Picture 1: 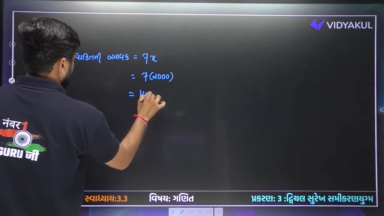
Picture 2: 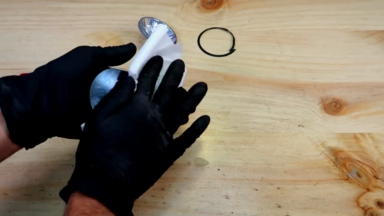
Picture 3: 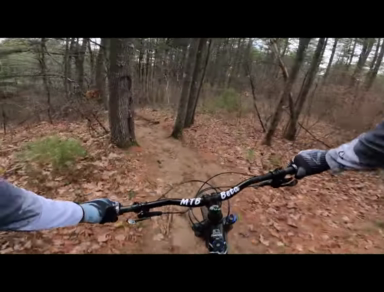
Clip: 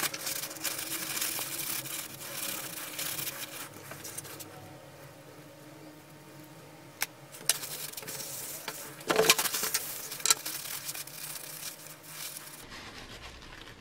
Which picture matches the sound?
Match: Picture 2